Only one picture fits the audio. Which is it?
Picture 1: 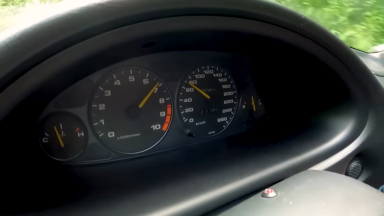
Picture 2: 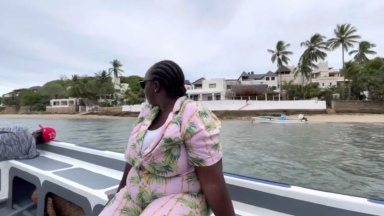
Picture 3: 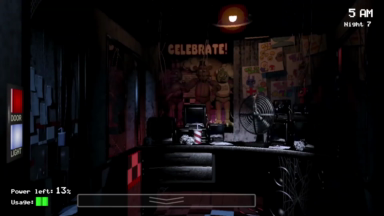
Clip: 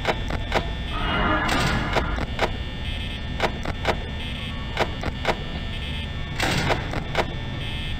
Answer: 3